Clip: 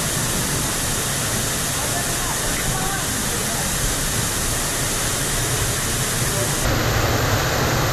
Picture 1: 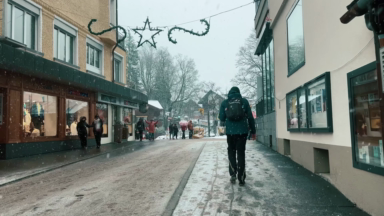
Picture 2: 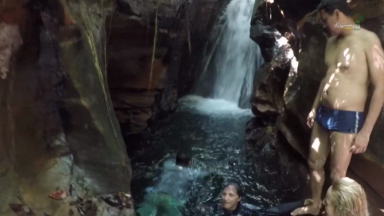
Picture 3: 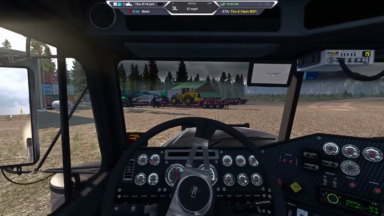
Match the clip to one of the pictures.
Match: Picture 2